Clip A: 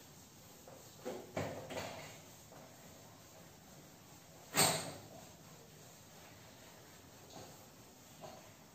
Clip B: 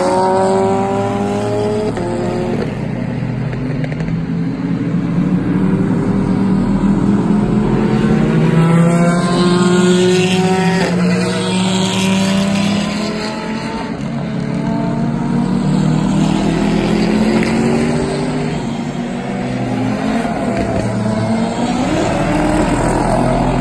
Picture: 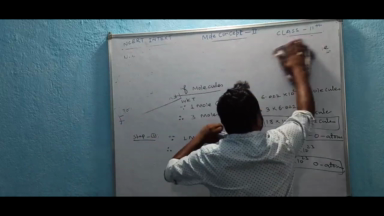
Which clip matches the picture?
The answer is A